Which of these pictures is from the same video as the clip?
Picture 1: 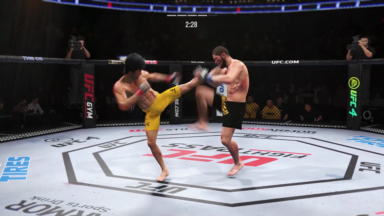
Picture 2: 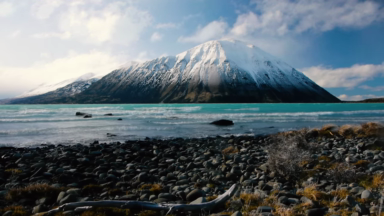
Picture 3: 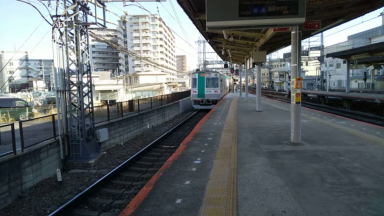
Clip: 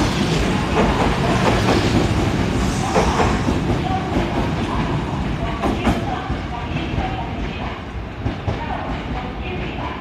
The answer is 3